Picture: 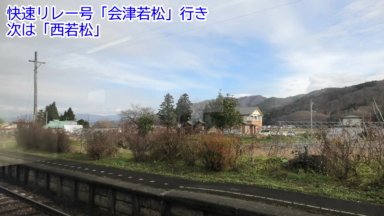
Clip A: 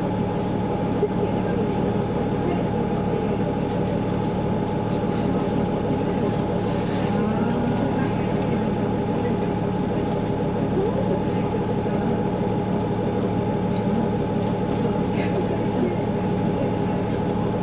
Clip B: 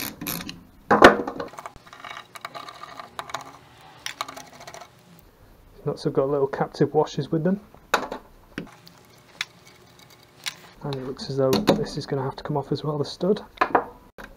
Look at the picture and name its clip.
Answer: A